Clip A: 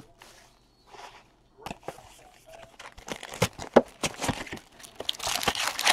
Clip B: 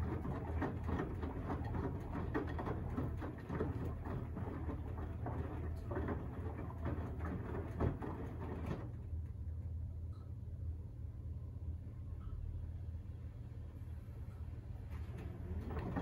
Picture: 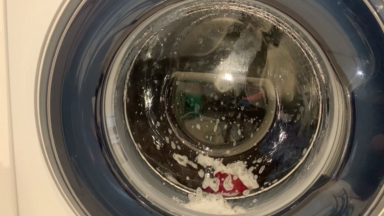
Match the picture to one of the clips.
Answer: B